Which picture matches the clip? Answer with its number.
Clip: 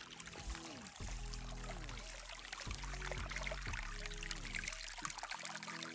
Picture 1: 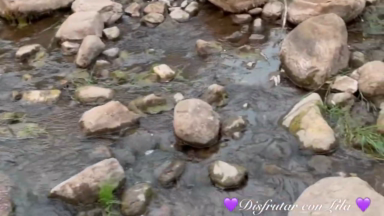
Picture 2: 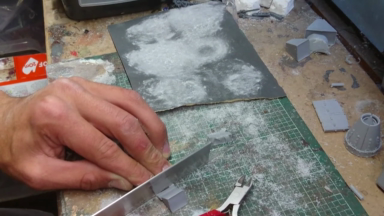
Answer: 1